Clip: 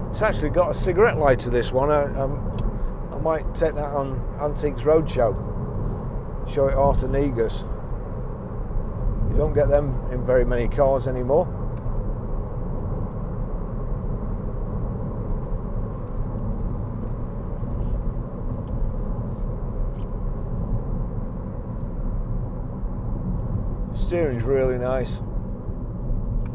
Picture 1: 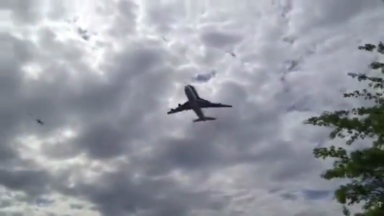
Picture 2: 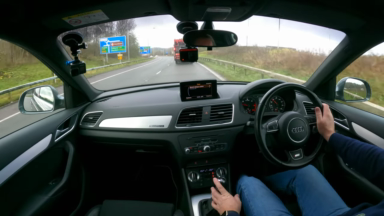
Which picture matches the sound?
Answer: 2